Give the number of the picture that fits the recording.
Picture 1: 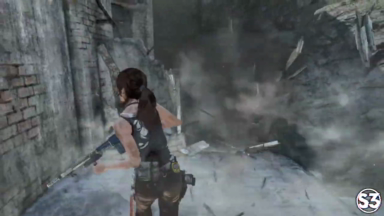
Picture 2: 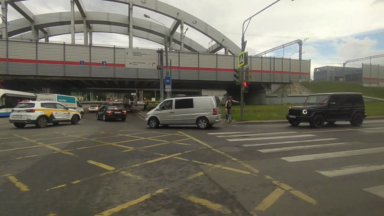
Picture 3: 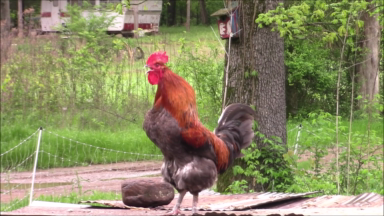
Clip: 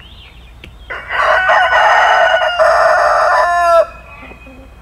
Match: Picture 3